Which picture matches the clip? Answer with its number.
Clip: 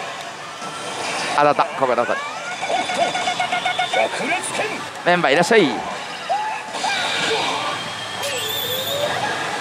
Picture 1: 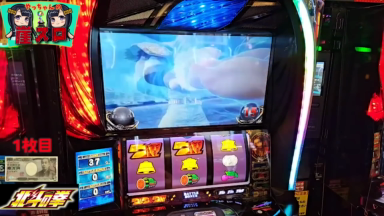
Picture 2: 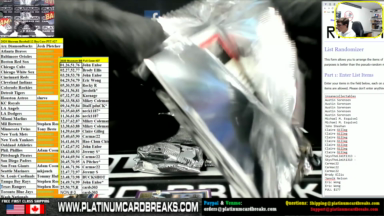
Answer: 1